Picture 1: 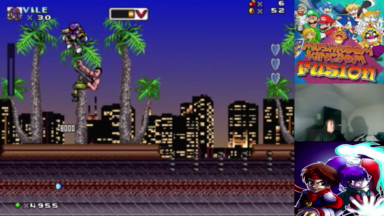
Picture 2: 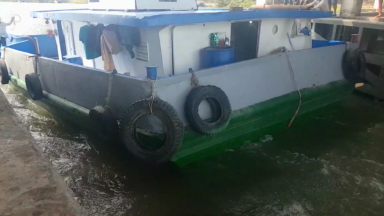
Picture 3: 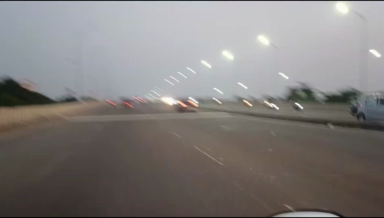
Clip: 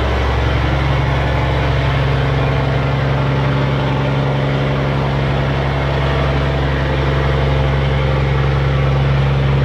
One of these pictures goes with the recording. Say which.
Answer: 2